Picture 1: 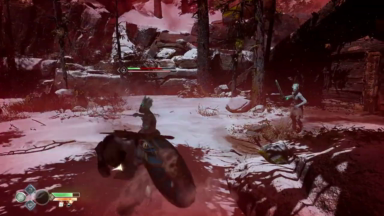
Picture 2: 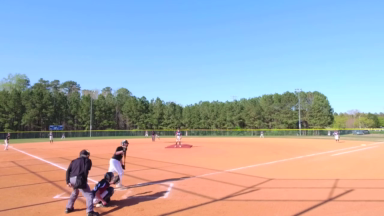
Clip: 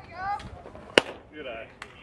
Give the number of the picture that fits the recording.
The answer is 2